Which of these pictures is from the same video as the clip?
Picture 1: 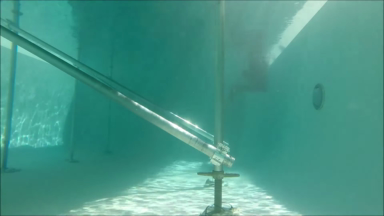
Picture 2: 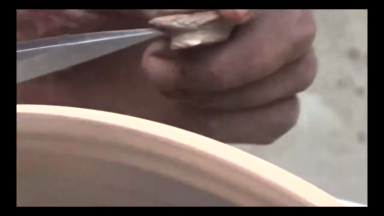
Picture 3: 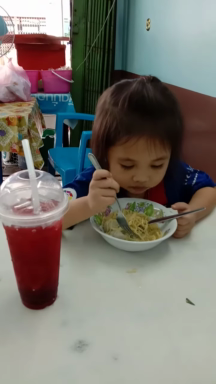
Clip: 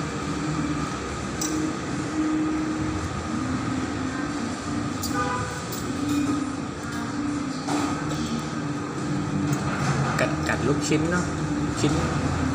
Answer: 3